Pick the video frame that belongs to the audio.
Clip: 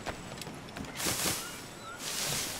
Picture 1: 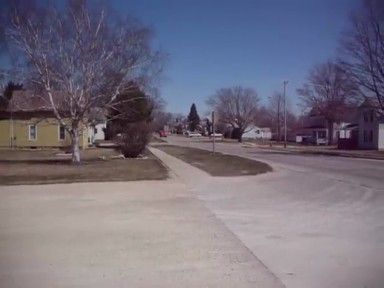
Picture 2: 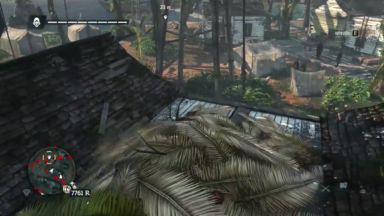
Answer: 2